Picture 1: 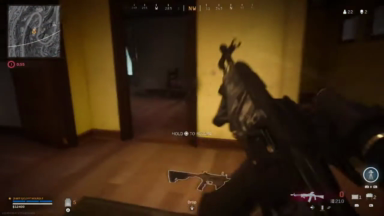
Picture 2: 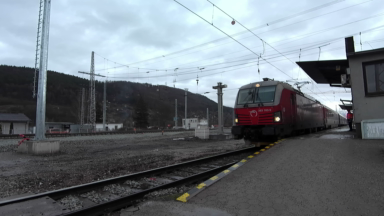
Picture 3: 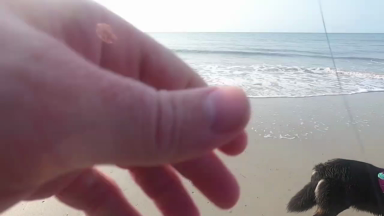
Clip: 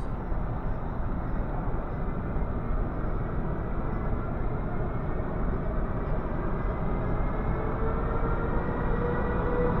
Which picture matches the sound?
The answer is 2